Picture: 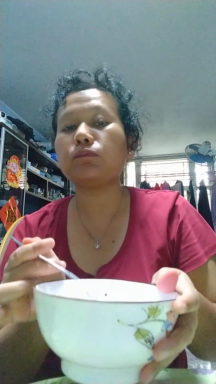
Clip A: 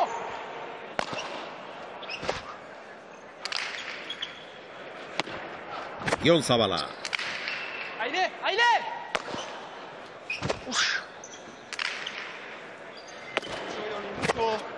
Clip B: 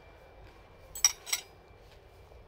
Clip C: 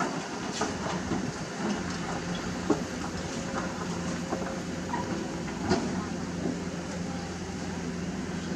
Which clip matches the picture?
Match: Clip B